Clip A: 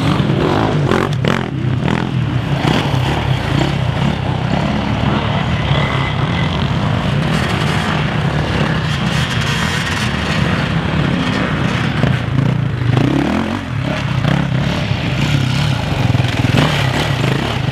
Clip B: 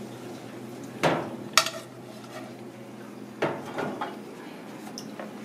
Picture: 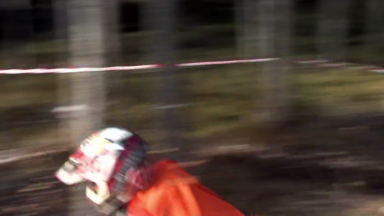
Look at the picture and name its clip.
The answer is A